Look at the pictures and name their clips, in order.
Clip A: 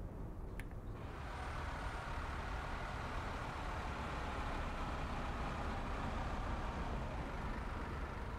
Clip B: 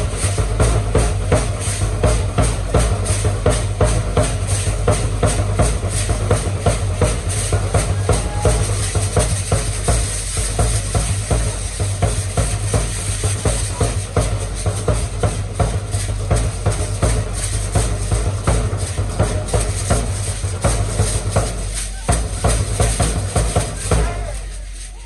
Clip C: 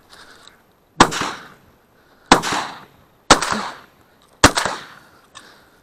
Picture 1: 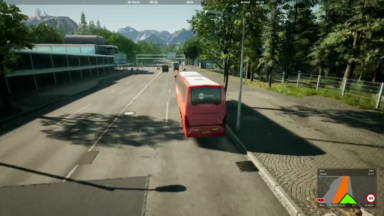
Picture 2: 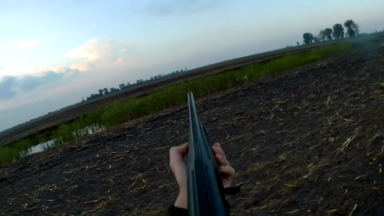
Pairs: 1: A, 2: C